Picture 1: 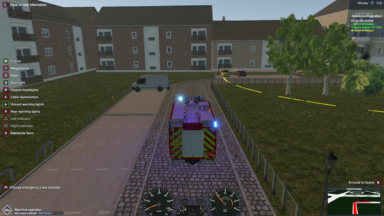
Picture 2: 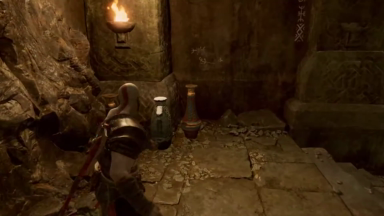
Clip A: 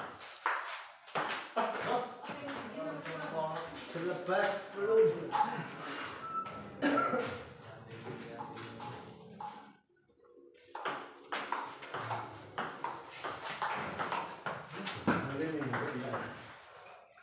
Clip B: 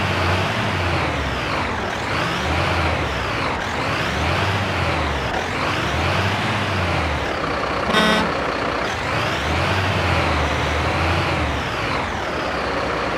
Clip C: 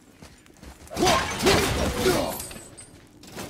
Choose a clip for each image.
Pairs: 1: B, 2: C